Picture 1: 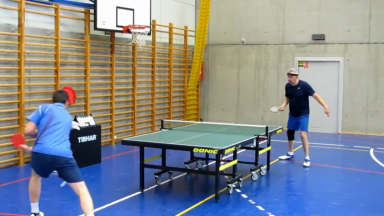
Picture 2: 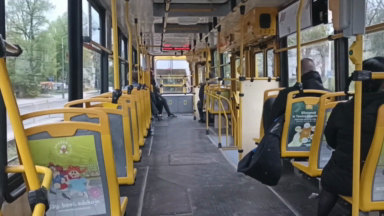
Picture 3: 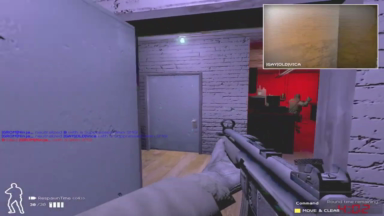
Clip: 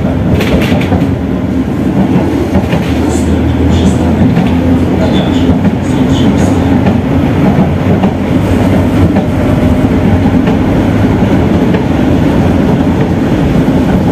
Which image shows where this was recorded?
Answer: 2